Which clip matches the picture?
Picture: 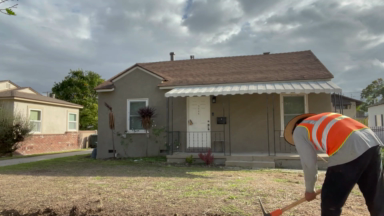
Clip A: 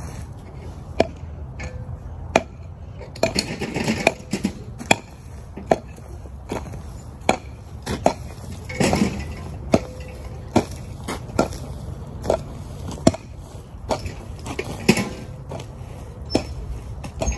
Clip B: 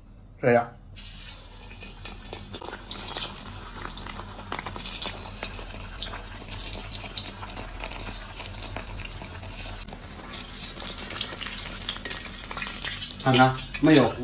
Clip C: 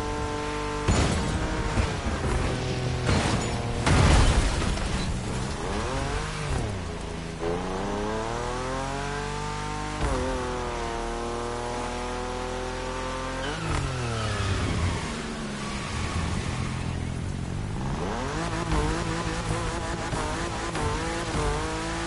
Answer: A